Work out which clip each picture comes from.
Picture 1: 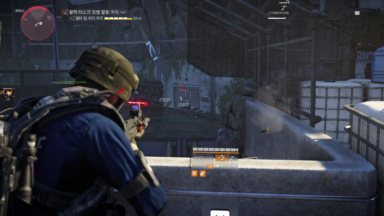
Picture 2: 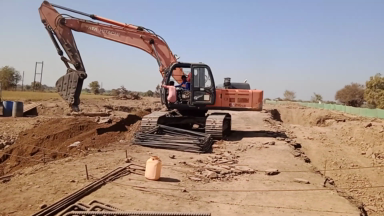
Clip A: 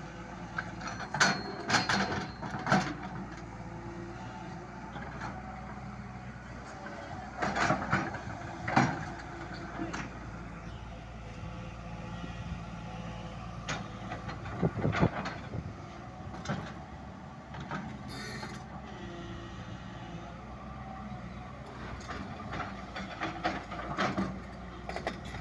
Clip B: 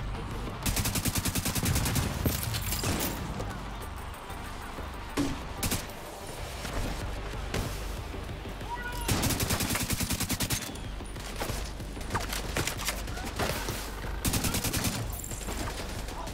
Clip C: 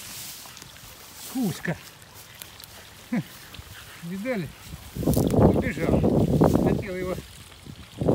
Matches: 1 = B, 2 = A